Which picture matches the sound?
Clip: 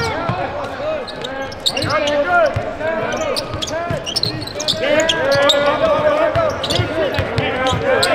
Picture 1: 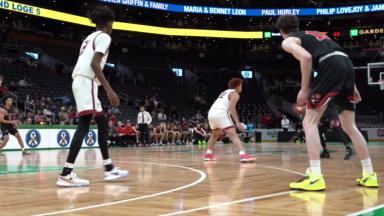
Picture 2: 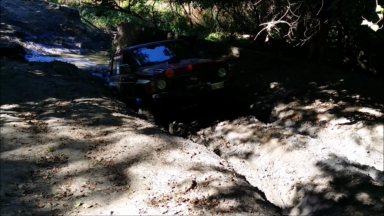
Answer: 1